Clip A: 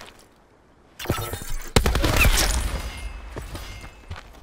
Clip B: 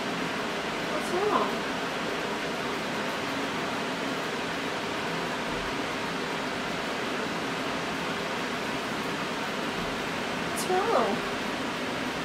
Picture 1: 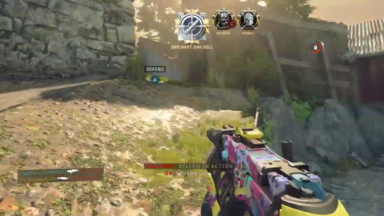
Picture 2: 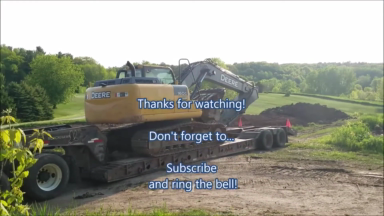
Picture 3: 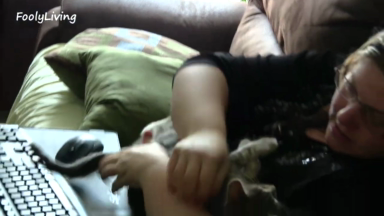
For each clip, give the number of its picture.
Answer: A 1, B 3